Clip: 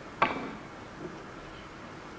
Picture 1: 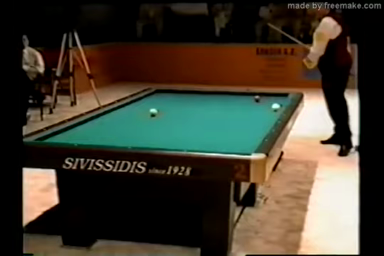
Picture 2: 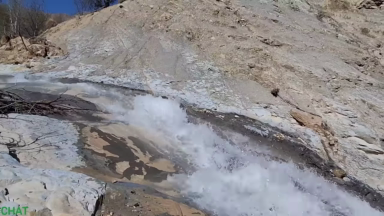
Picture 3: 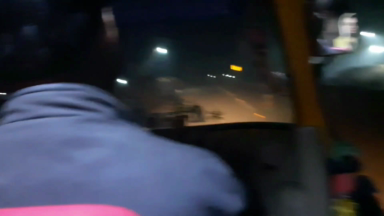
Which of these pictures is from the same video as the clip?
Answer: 1